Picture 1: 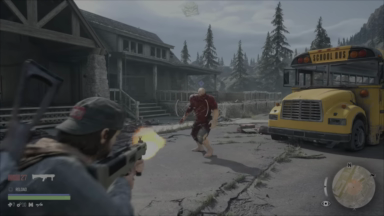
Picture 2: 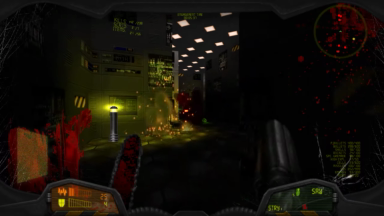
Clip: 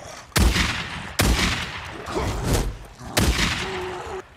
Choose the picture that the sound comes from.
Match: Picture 1